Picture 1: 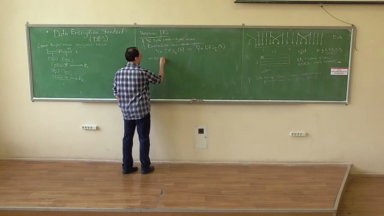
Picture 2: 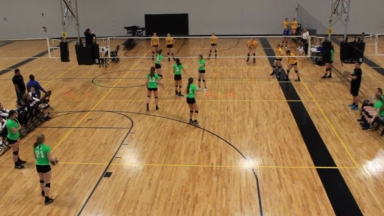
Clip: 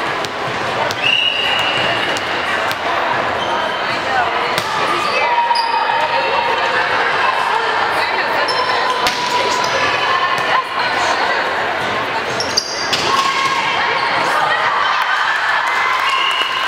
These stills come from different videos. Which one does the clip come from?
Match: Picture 2